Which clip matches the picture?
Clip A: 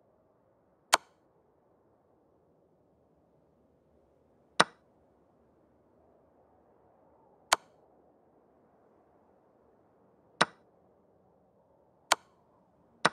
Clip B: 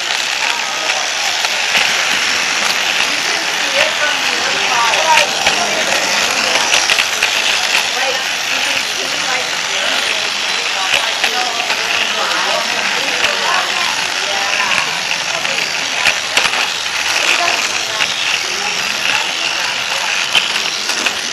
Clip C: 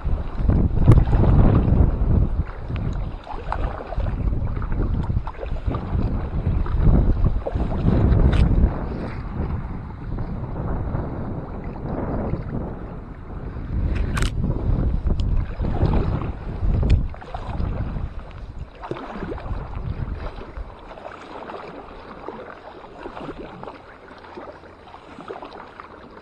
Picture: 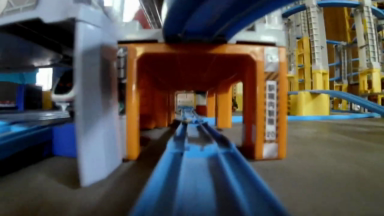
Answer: B